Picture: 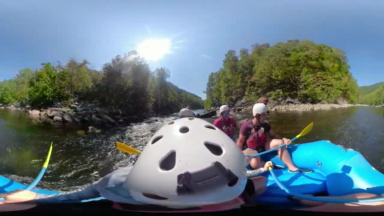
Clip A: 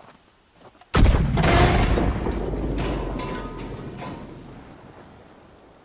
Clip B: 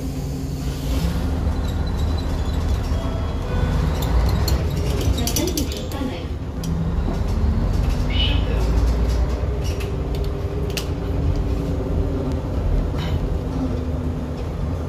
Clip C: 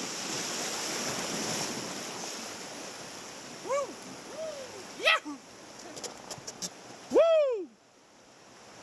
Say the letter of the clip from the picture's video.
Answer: C